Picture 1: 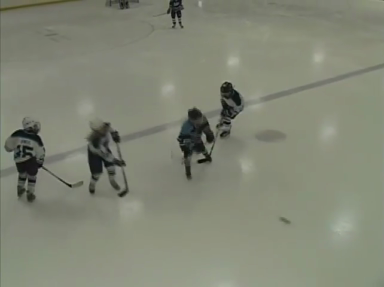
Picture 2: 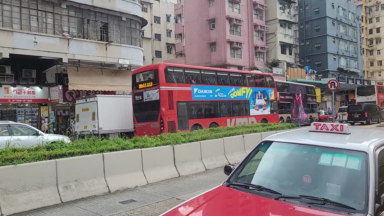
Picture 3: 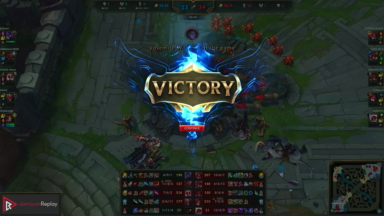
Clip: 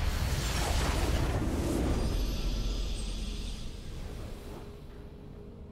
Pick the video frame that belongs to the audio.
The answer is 3